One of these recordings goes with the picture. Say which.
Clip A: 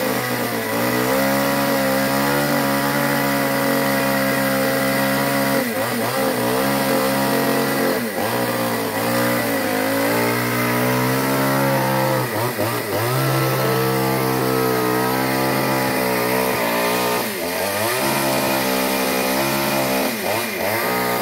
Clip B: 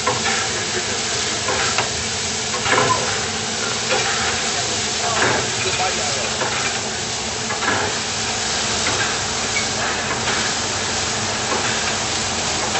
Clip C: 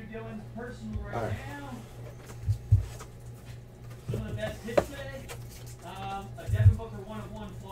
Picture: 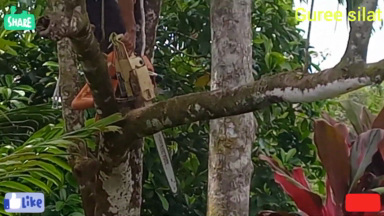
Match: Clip A